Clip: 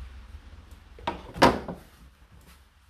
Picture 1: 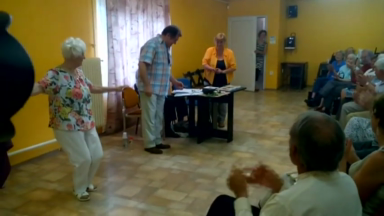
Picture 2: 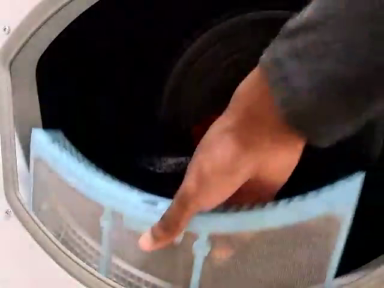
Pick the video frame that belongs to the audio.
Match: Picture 2